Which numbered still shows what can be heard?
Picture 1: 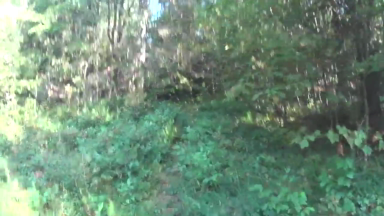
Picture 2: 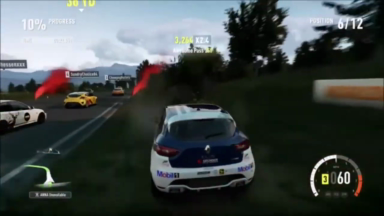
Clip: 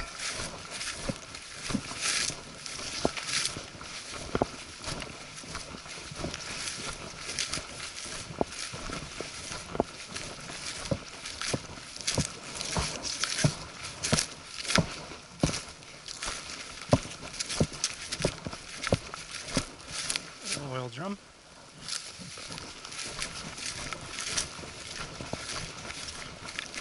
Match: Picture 1